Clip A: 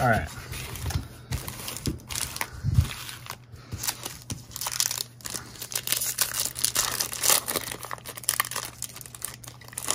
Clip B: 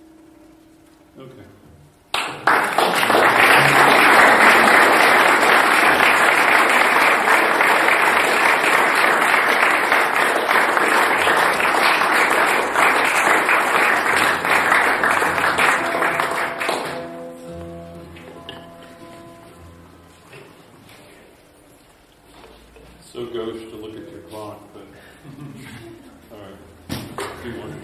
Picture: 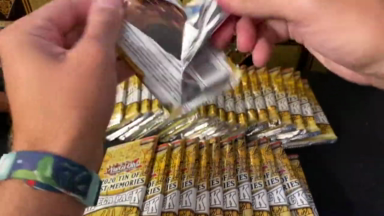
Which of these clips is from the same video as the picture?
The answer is A